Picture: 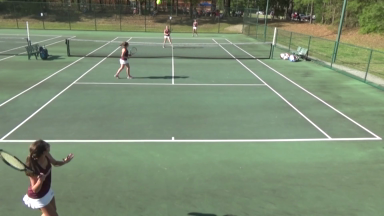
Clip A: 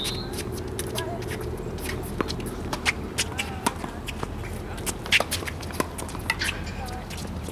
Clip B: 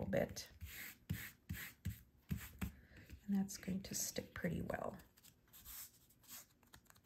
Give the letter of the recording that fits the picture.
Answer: A